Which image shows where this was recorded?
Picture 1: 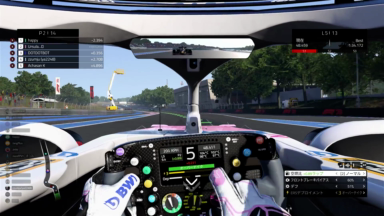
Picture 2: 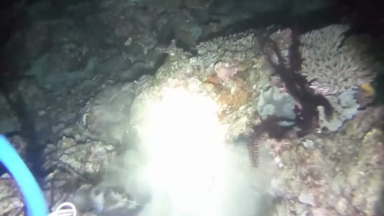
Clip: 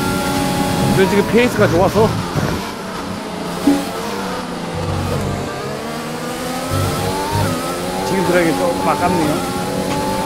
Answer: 1